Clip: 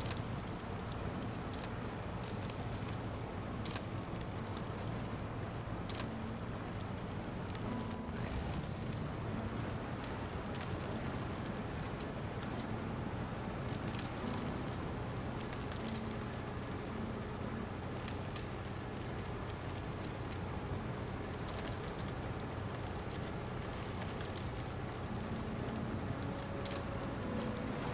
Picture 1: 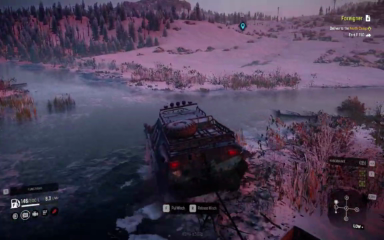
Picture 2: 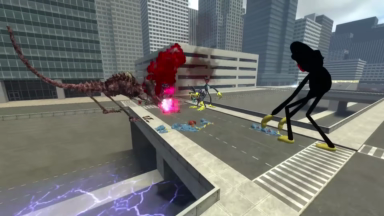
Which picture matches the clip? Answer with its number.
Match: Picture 1